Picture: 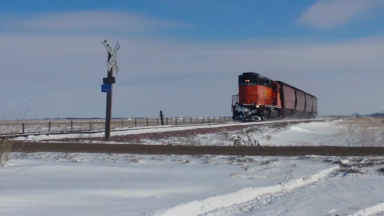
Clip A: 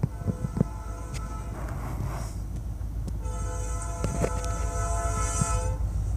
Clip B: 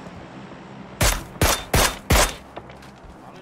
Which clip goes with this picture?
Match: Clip A